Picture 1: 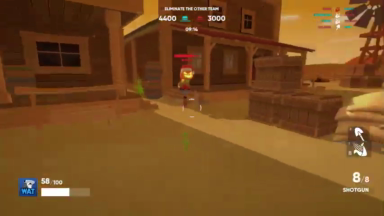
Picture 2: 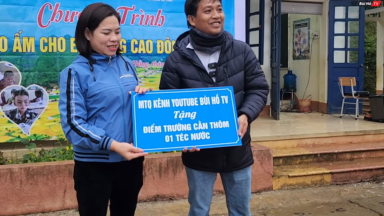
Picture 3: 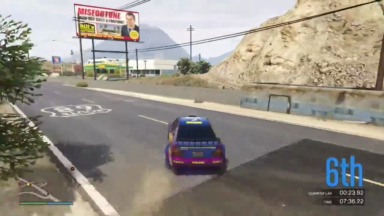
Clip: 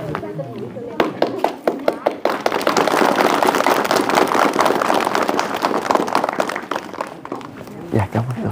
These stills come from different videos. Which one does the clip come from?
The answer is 2